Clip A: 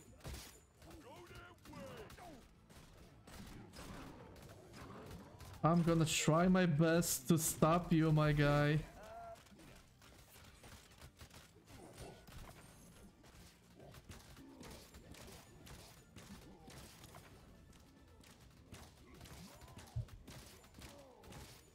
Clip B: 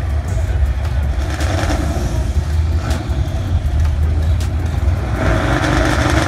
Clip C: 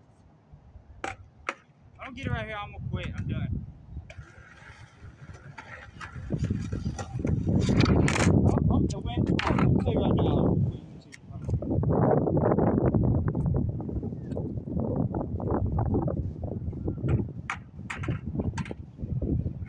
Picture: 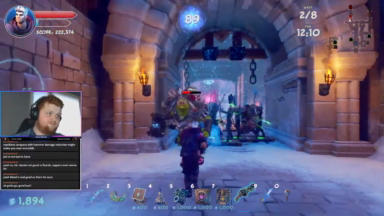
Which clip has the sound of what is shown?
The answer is A